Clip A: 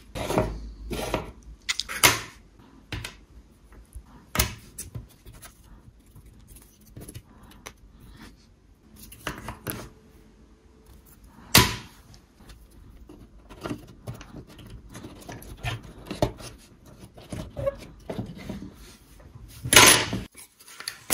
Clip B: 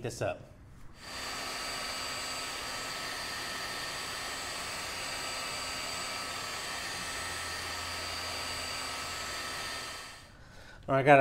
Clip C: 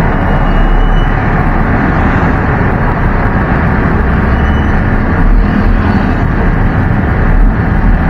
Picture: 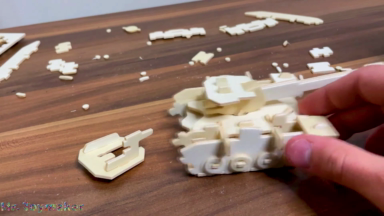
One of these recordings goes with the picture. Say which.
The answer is A